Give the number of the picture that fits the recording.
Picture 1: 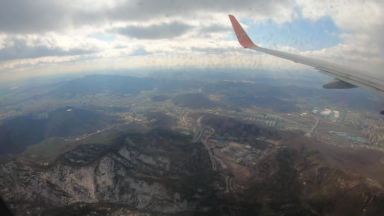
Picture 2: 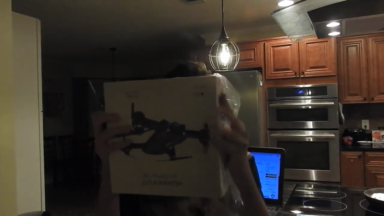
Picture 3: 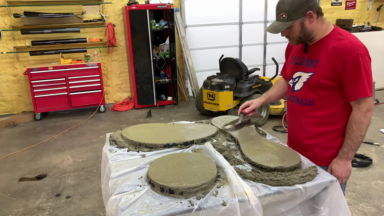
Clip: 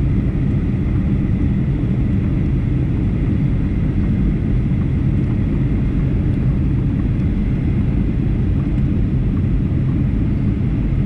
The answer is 1